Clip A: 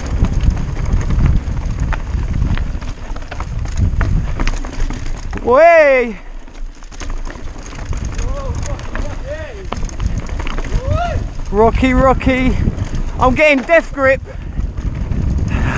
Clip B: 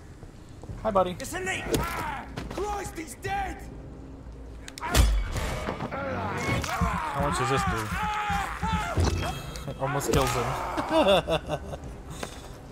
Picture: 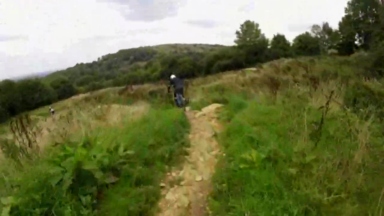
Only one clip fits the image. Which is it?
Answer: A